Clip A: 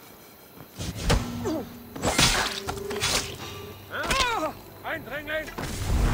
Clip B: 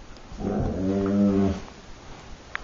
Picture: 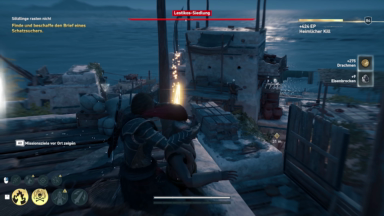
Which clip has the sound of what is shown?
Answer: A